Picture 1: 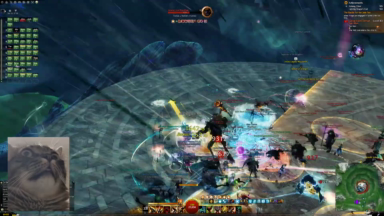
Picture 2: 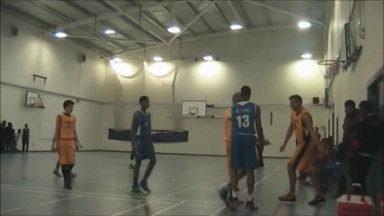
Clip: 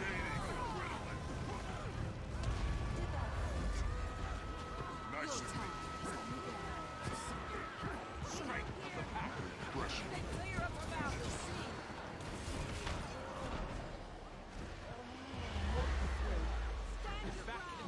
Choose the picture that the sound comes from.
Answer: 1